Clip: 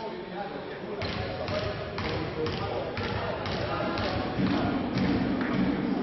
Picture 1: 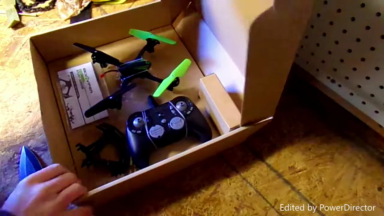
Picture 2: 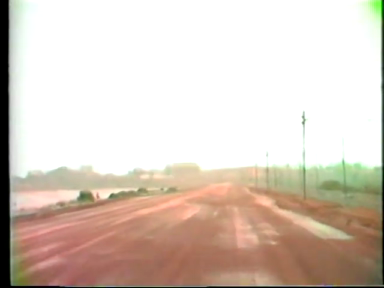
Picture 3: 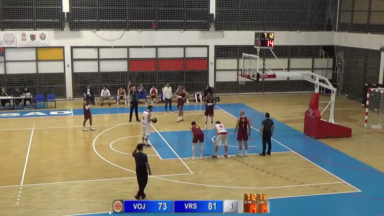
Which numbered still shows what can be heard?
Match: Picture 3